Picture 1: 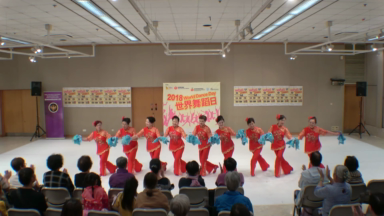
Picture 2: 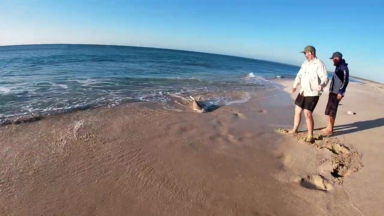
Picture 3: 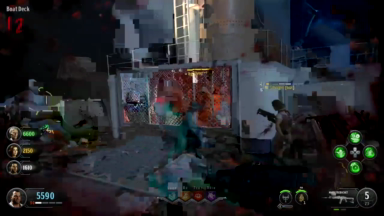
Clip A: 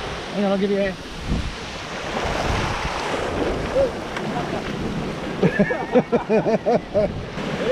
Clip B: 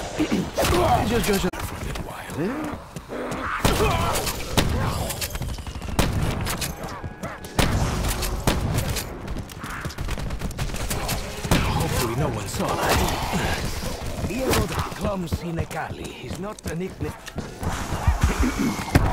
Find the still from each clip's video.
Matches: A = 2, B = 3